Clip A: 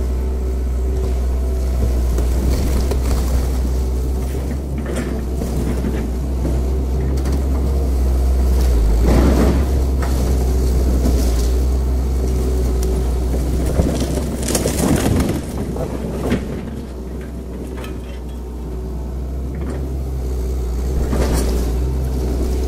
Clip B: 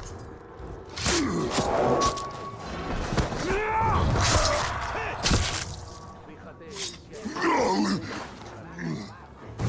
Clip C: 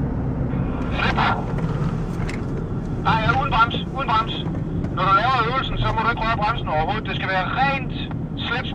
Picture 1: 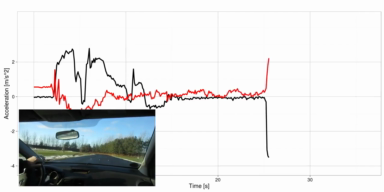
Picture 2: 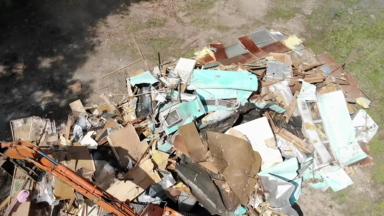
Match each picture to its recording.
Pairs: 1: C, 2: A